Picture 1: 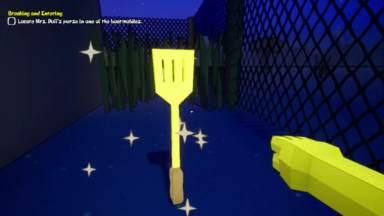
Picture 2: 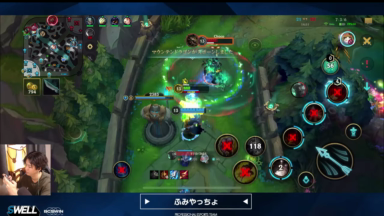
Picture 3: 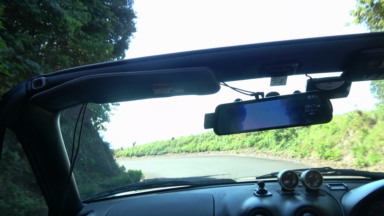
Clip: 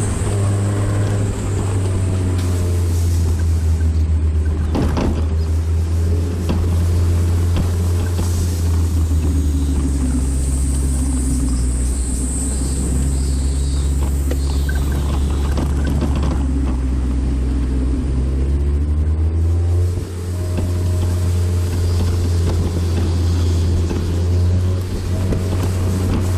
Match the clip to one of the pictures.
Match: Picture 3